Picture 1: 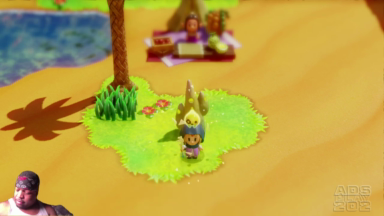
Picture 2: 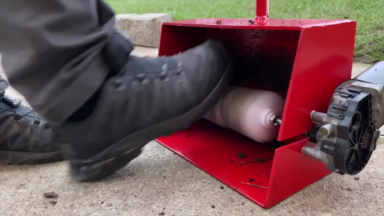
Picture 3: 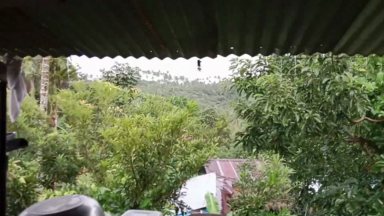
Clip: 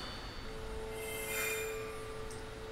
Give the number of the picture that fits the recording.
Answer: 1